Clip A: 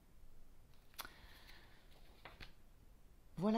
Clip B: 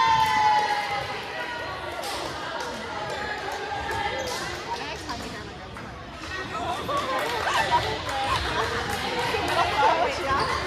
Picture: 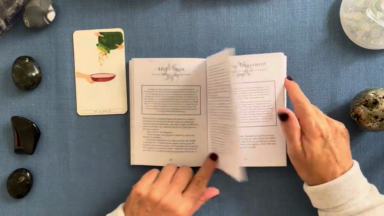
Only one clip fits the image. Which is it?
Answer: A